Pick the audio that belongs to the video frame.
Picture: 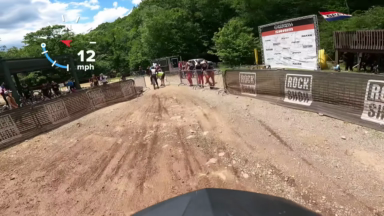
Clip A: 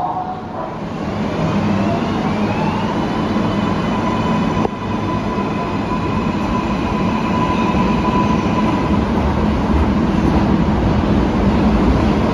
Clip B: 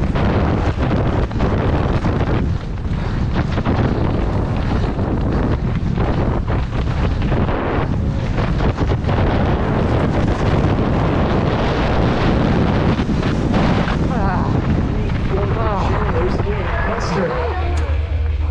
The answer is B